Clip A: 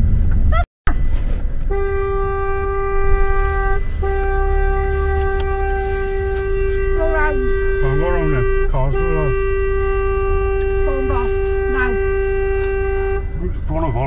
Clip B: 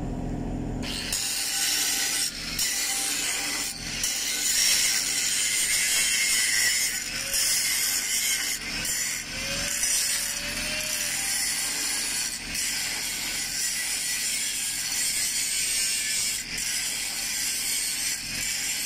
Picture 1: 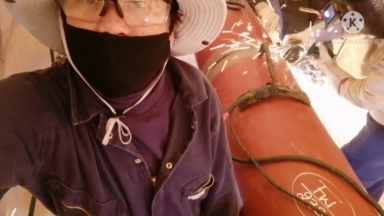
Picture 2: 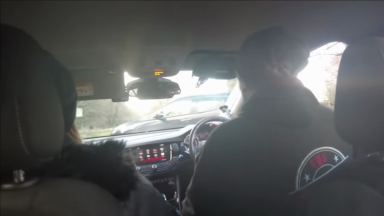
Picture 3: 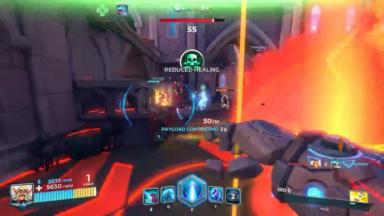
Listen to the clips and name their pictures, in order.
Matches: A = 2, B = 1